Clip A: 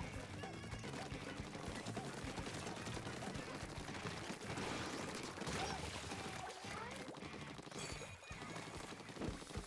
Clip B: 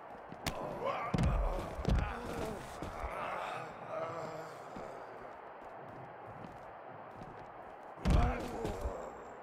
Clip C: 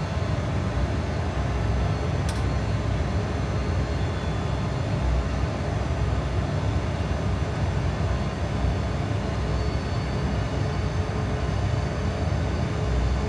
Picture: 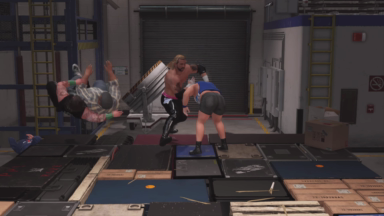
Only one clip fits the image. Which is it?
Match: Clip B